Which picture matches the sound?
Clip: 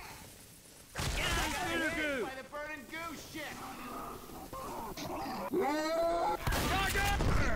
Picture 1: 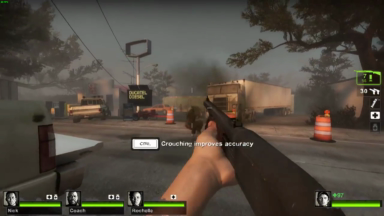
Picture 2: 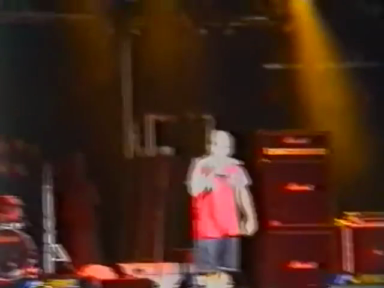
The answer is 1